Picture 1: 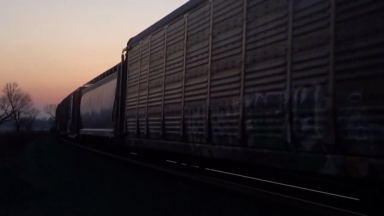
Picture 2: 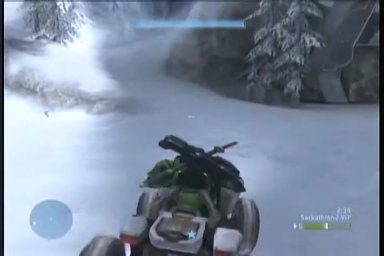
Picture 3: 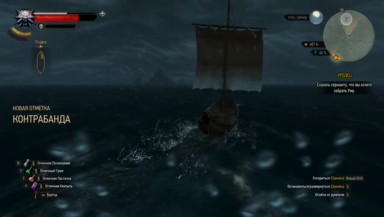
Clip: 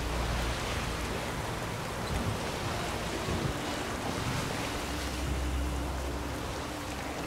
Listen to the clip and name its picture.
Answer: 3